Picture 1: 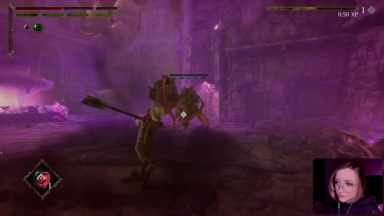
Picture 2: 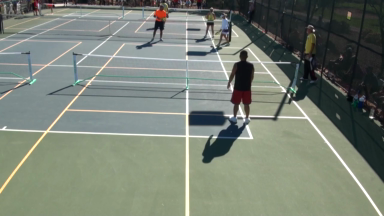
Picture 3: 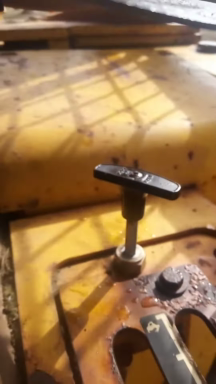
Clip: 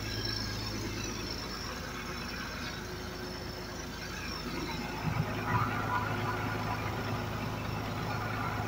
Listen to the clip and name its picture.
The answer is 3